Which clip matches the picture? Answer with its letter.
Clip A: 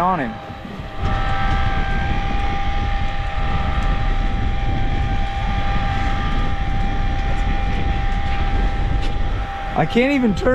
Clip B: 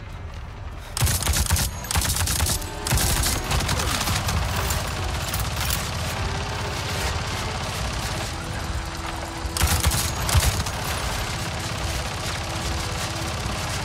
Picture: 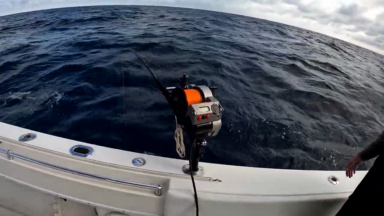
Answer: A